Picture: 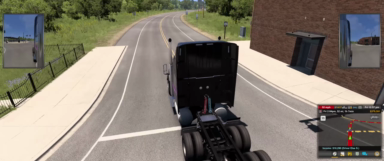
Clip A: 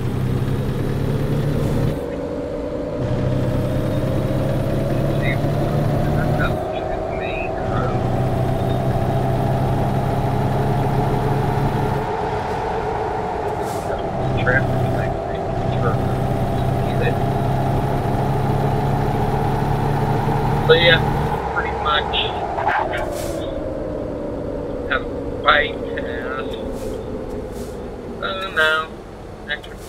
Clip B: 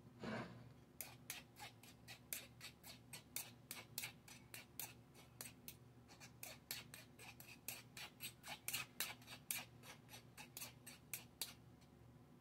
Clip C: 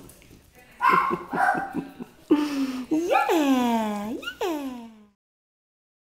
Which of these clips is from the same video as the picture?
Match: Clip A